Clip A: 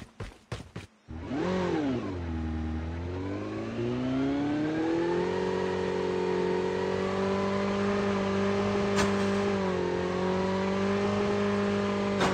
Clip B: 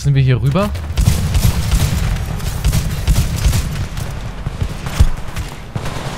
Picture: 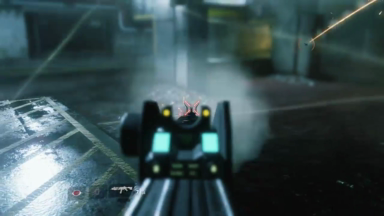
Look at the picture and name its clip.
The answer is B